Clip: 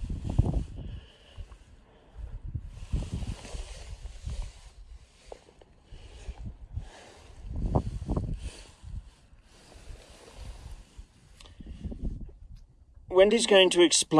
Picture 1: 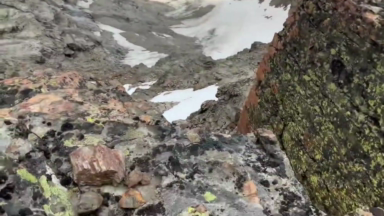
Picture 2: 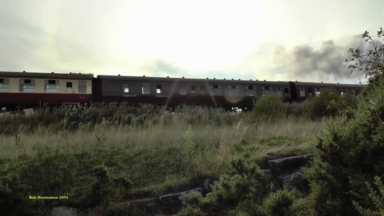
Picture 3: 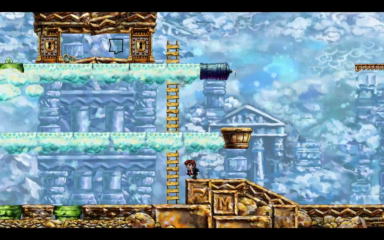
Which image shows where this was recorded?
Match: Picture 1